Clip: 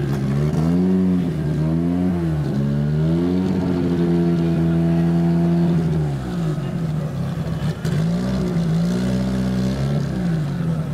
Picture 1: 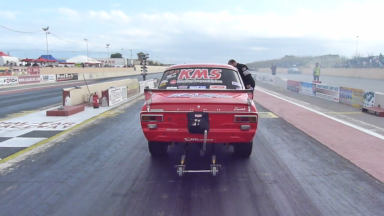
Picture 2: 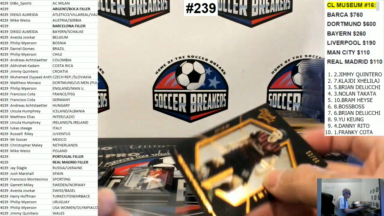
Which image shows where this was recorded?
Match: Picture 1